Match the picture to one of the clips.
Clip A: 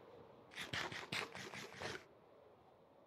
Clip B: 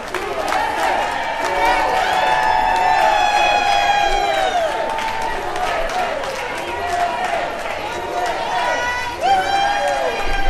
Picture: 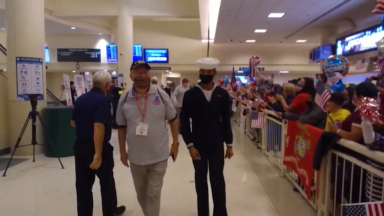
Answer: B